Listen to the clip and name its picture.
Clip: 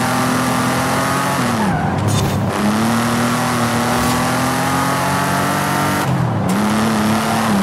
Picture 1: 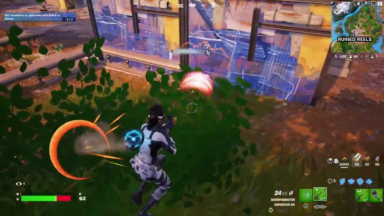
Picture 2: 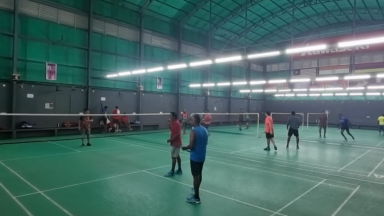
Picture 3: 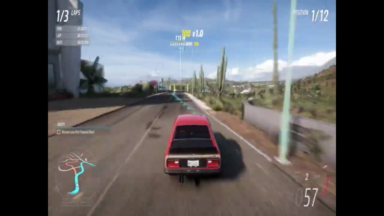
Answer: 3